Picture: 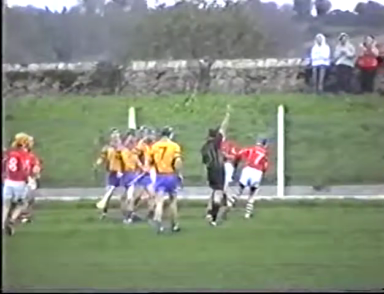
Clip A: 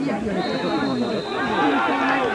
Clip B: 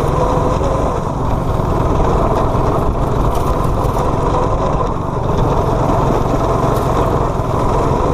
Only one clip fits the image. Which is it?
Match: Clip A